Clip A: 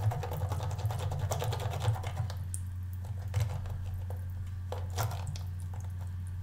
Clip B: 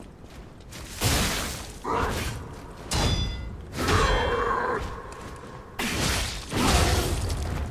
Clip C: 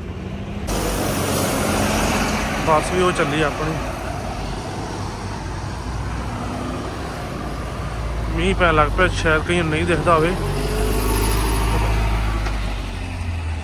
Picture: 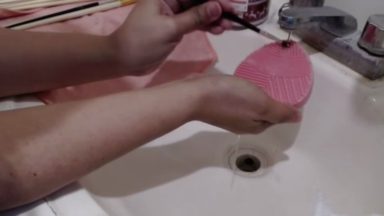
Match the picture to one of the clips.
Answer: A